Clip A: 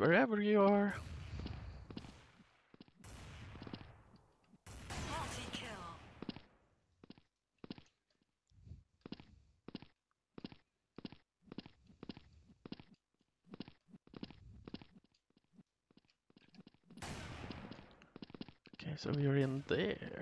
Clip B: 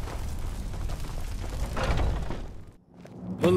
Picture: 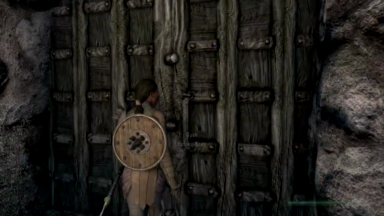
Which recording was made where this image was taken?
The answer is B